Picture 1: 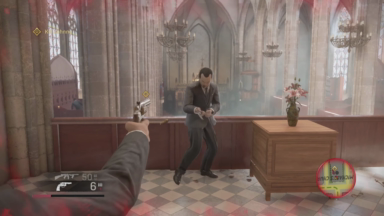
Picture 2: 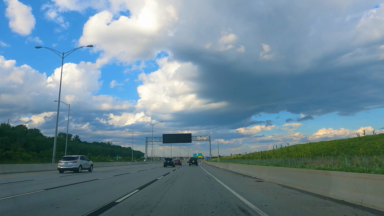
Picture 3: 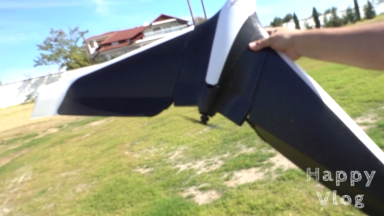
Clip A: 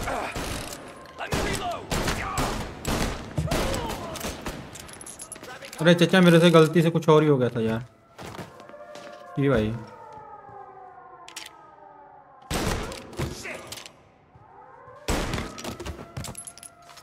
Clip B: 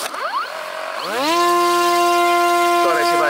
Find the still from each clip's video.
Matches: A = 1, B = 3